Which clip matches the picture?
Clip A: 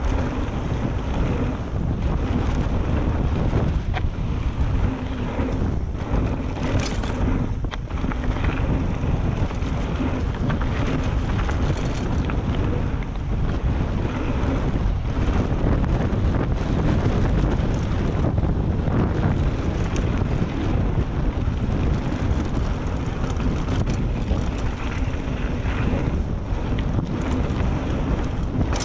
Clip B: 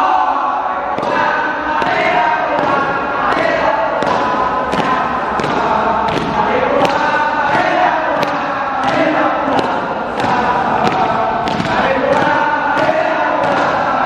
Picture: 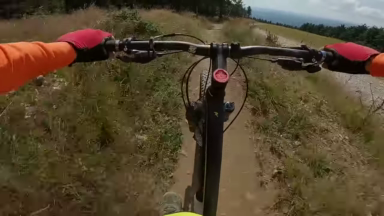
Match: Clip A